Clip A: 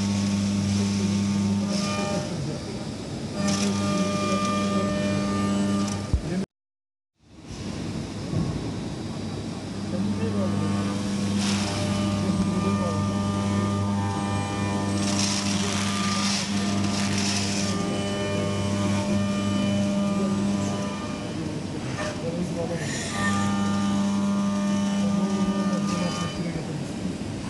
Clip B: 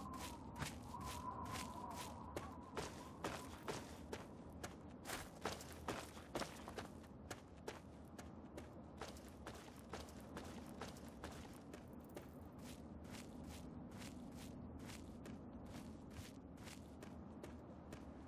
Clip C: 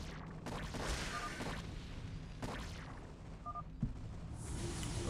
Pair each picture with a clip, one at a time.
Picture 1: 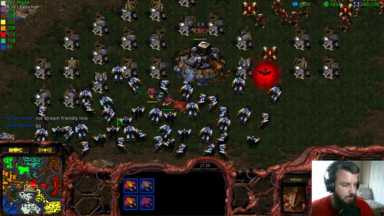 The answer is C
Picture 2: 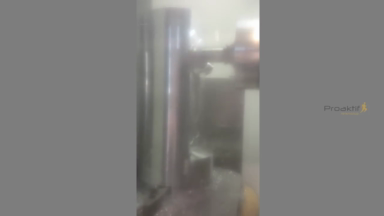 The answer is A